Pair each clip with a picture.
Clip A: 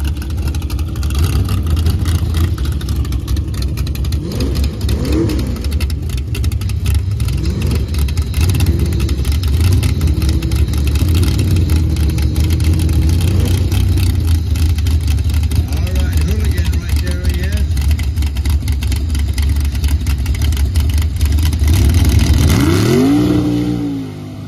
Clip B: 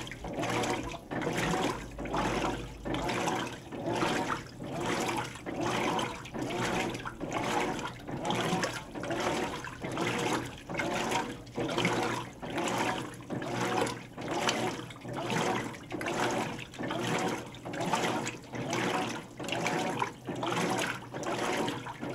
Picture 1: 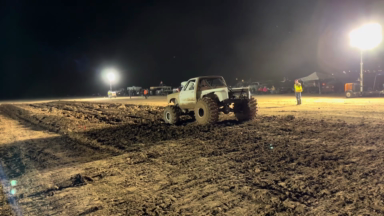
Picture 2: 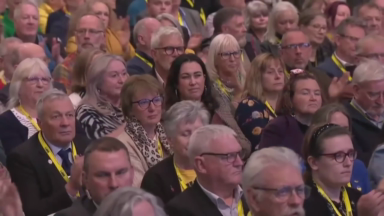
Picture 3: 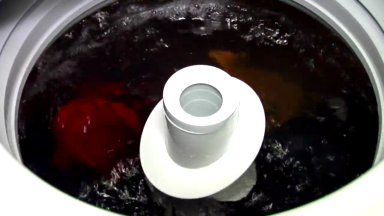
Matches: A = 1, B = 3